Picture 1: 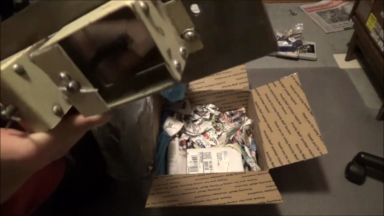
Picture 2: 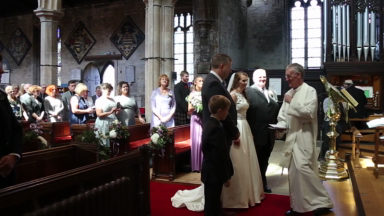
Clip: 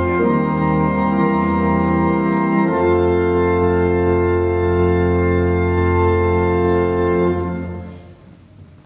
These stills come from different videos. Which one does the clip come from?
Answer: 2